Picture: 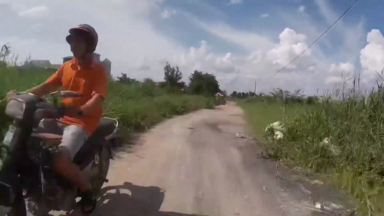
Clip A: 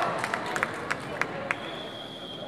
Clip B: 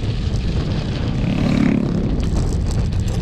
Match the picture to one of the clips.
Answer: B